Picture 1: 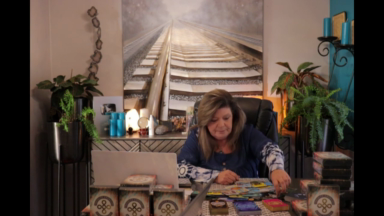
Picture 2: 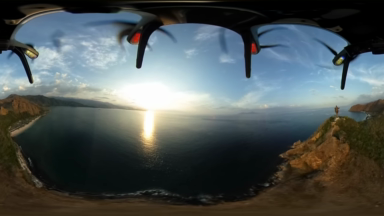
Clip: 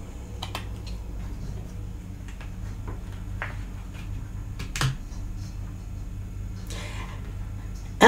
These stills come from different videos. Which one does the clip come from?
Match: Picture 1